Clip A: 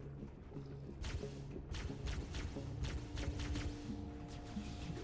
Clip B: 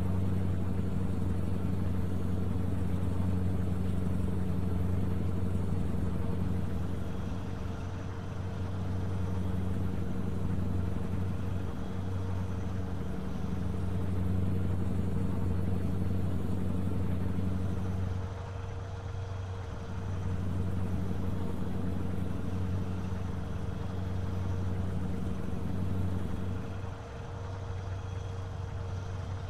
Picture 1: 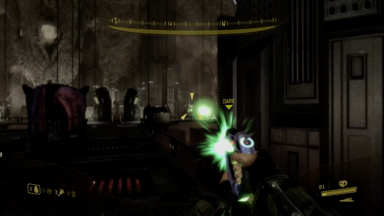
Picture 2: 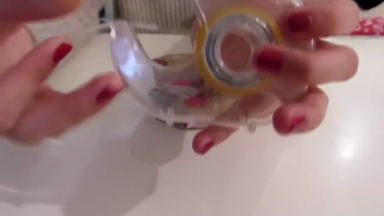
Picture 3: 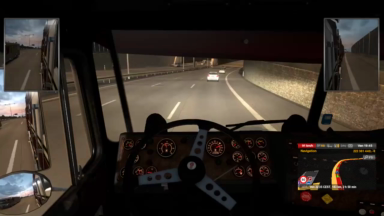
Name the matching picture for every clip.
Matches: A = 1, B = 3